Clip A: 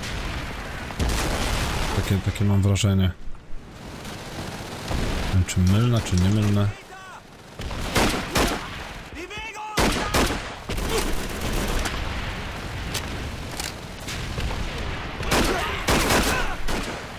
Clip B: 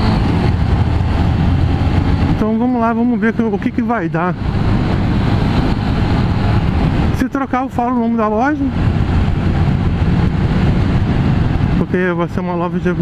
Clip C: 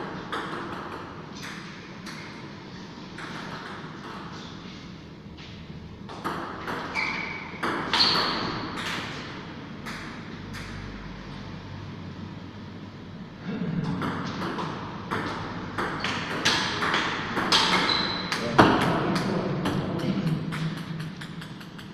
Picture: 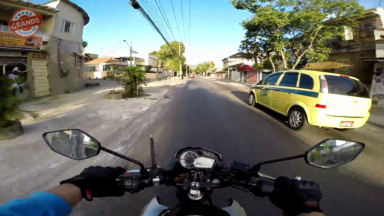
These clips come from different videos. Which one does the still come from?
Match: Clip B